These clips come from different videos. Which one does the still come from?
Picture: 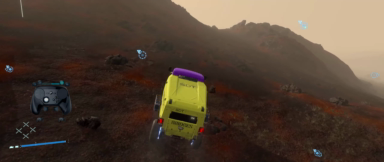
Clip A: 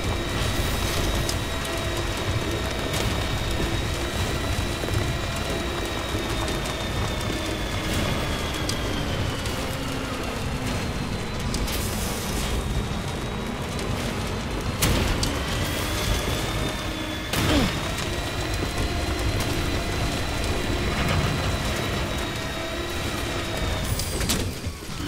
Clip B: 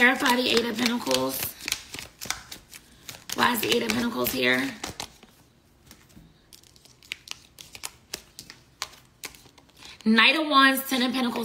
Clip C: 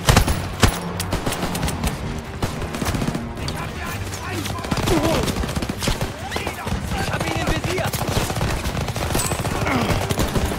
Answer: A